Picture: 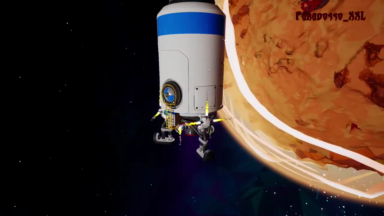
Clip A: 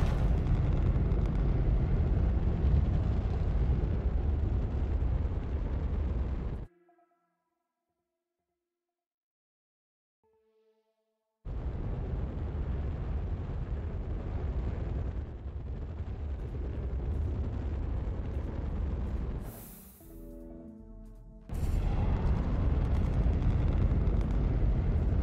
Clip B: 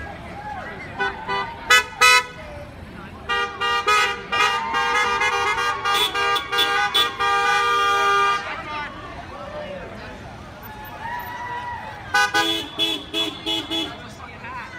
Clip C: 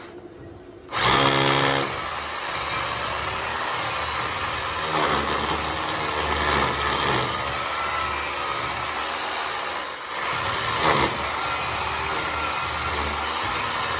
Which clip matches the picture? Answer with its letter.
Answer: A